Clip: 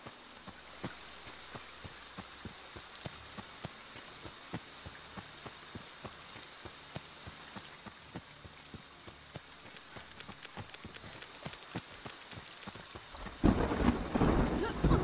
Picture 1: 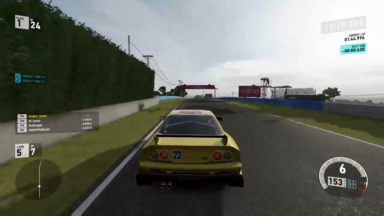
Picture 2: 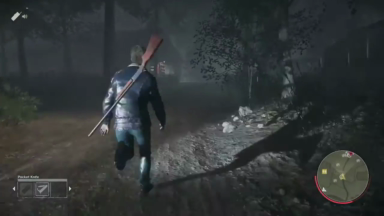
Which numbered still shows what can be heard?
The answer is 2